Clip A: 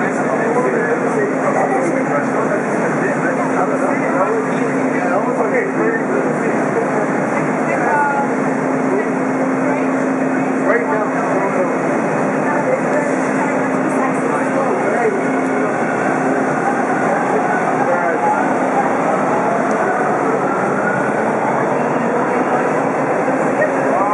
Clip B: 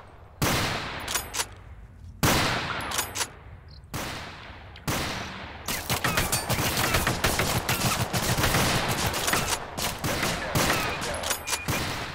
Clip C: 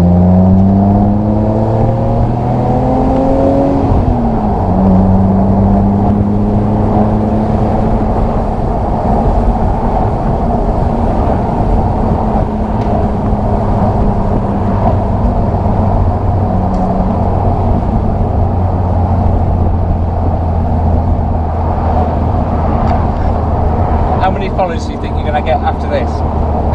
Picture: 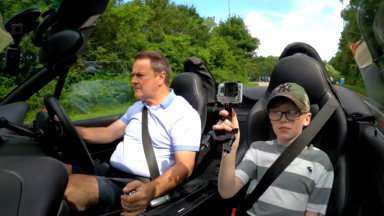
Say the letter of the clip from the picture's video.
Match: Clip C